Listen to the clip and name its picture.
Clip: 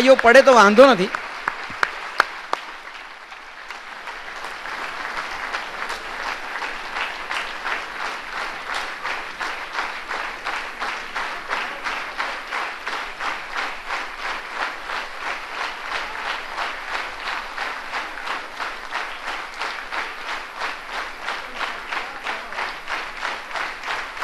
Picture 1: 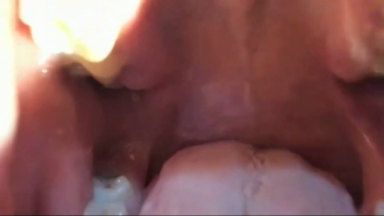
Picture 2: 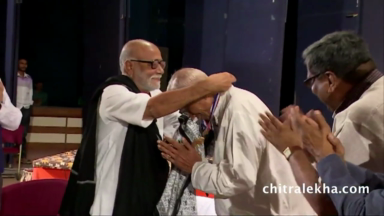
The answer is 2